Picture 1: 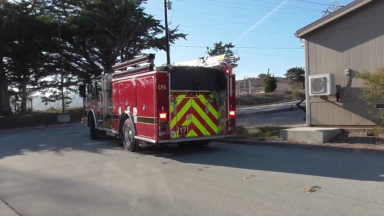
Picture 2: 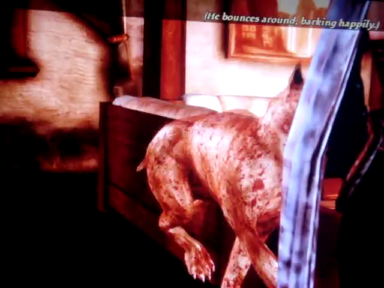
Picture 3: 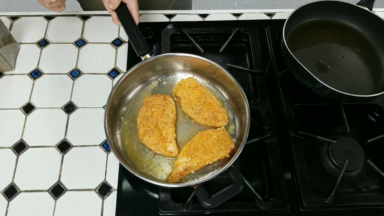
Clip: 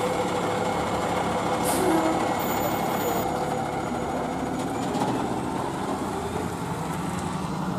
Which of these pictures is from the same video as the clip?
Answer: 1